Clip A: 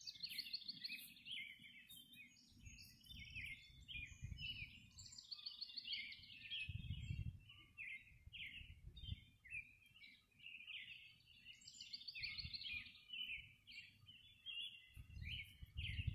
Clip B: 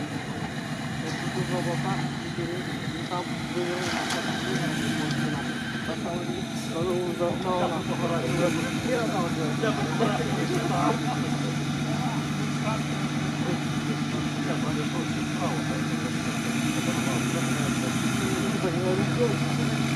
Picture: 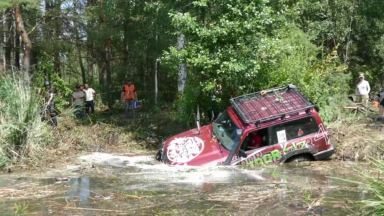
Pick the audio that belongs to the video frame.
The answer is B